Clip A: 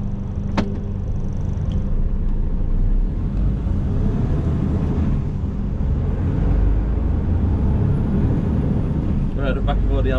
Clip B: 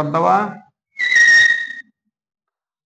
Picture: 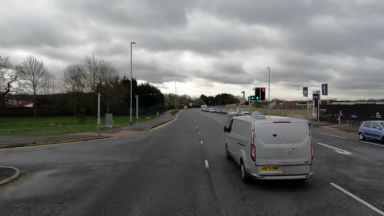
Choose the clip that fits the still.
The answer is A